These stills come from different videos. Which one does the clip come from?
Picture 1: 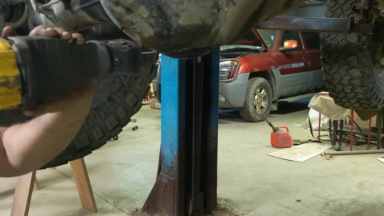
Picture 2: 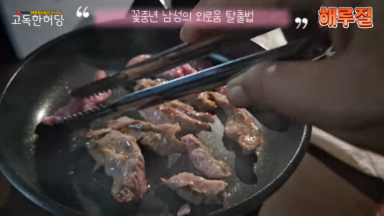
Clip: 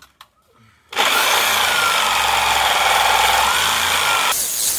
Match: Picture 1